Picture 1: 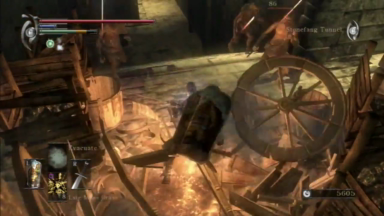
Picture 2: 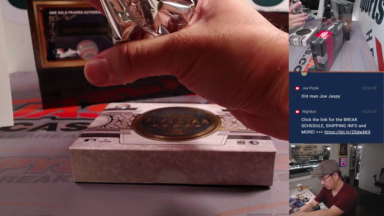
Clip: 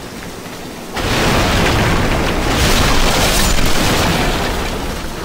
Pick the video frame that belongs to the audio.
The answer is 1